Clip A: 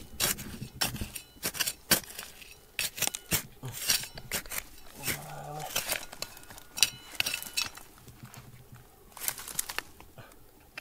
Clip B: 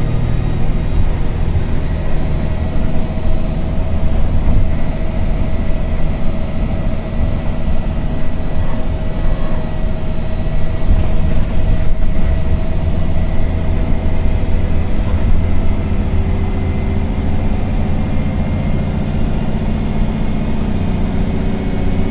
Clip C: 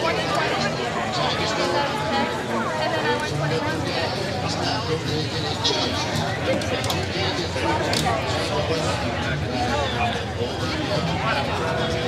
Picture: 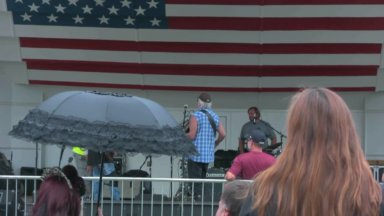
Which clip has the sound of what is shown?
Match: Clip C